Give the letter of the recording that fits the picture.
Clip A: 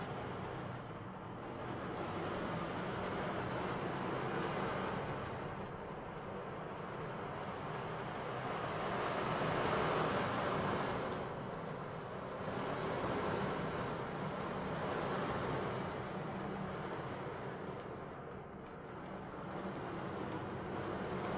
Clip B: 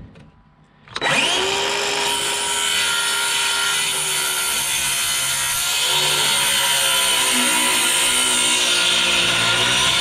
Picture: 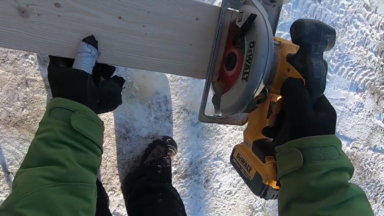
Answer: B